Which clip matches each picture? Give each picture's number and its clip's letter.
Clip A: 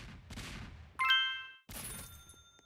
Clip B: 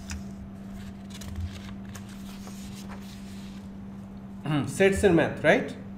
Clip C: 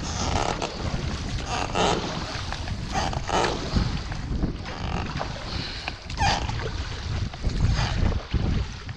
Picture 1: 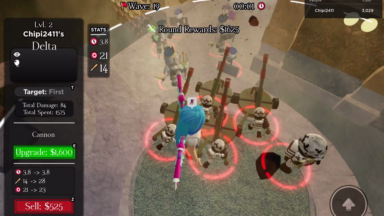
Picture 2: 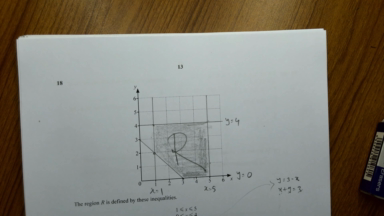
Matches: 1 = A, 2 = B